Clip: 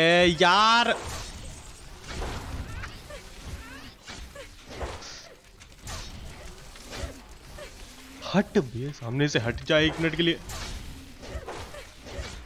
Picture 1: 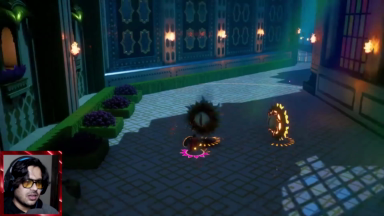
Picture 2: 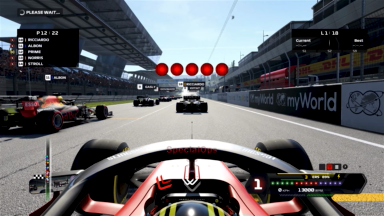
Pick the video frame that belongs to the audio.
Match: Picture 1